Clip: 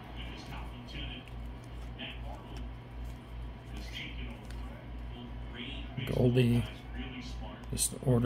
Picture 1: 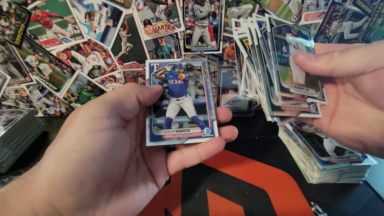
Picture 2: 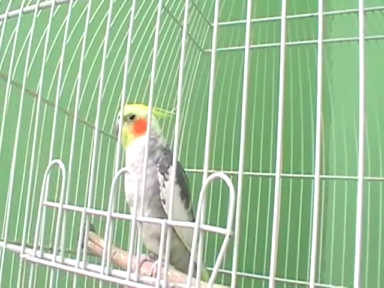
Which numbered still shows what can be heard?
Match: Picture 1